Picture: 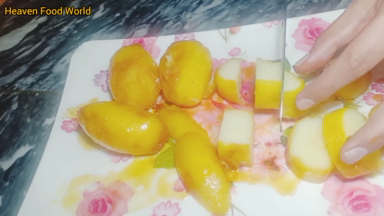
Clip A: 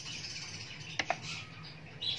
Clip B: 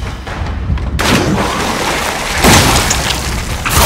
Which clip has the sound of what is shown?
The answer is A